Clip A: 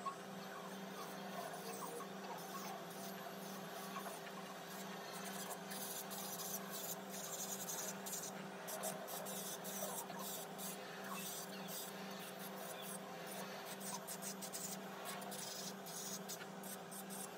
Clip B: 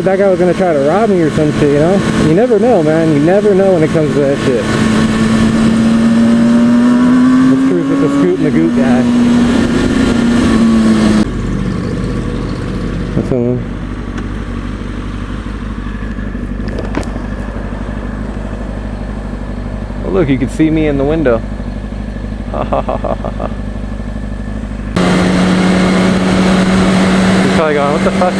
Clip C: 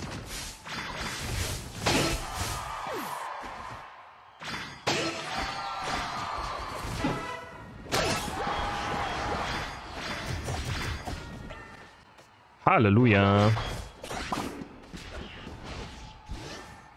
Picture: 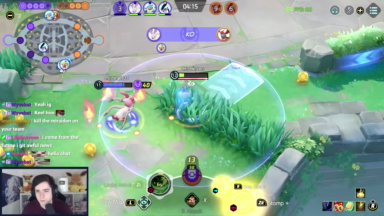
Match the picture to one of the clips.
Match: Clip C